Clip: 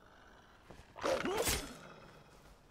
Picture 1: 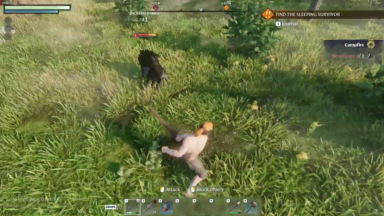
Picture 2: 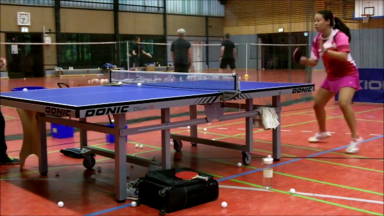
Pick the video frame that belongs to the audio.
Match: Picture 1